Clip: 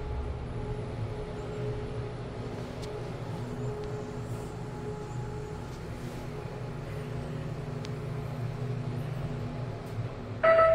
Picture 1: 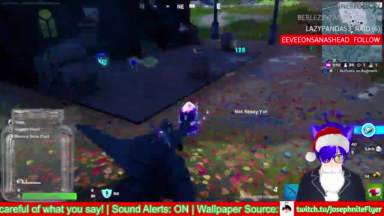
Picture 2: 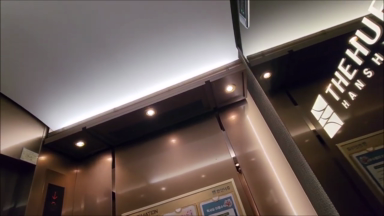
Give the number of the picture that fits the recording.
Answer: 2